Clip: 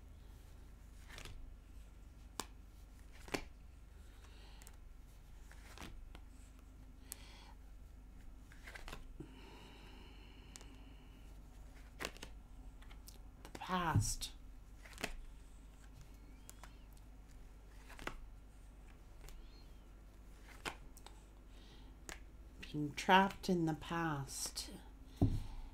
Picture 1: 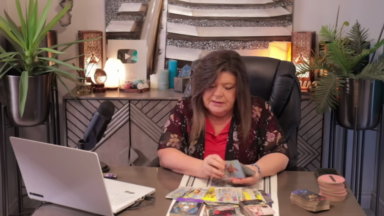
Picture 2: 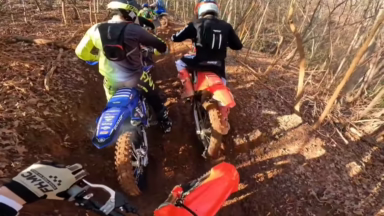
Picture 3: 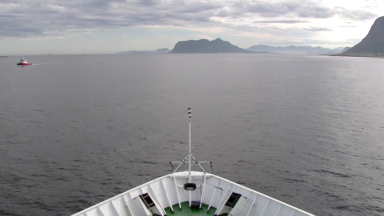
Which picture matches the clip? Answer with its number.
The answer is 1